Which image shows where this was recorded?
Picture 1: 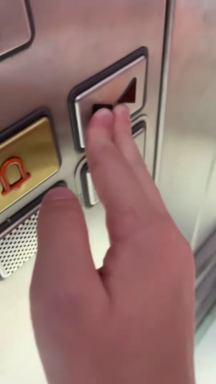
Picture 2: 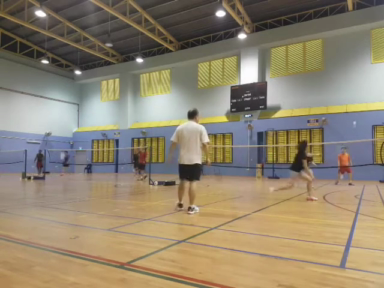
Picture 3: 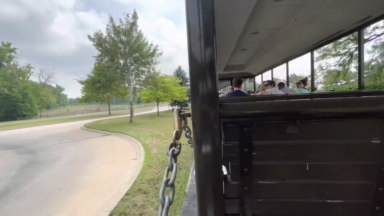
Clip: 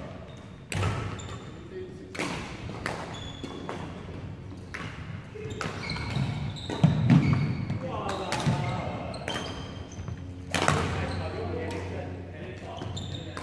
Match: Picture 2